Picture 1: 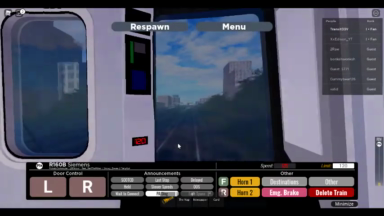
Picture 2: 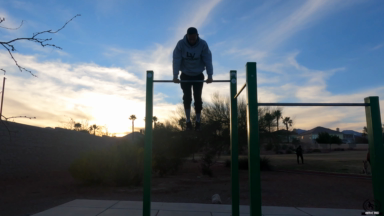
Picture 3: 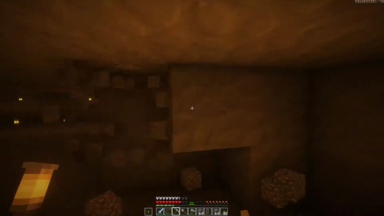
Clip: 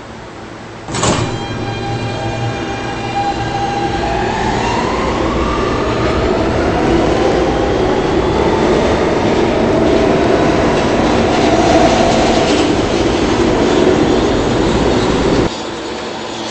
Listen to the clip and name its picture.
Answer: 1